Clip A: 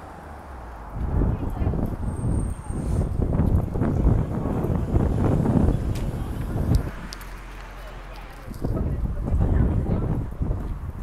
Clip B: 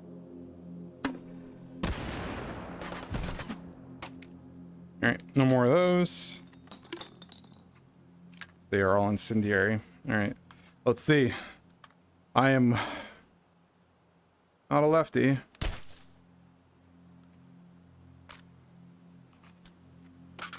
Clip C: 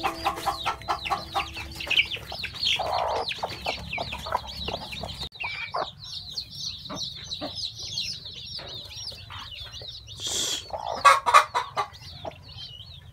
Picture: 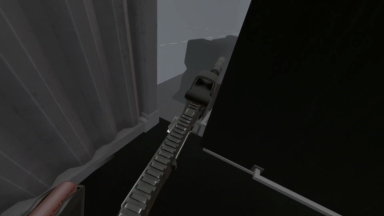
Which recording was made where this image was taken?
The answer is B